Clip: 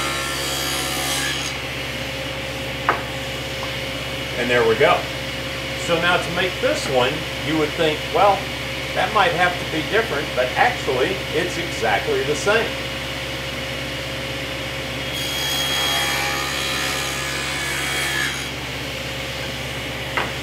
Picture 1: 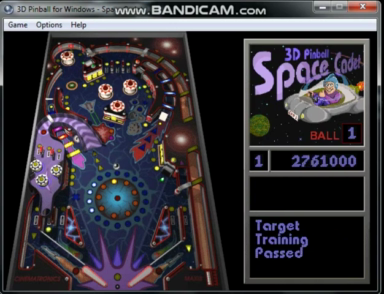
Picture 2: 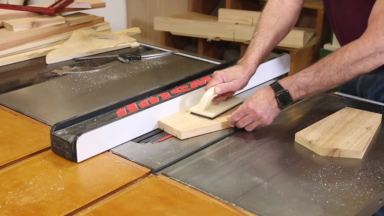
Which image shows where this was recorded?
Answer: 2